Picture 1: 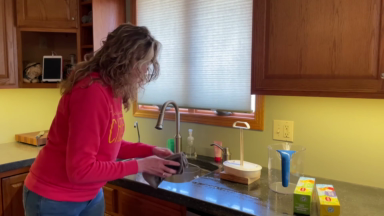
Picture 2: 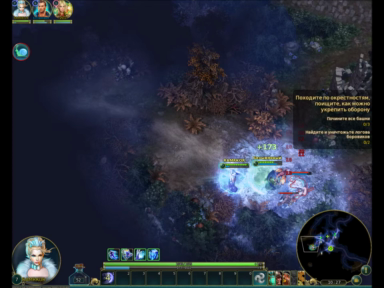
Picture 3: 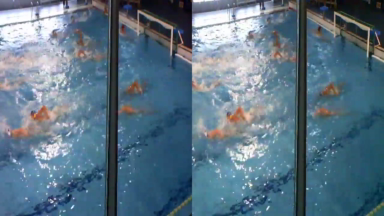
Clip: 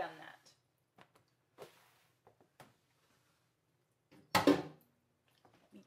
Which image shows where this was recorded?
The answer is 1